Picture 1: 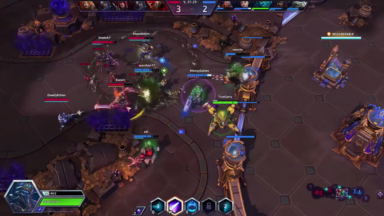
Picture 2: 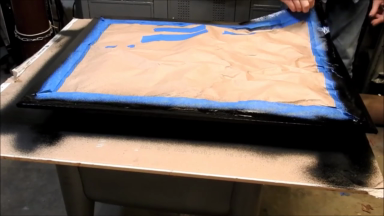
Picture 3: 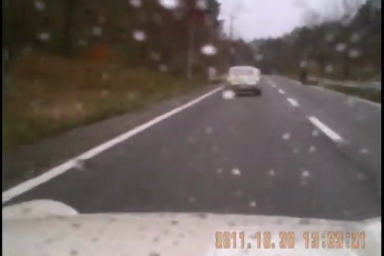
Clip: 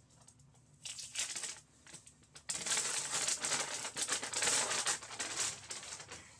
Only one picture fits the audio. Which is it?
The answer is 2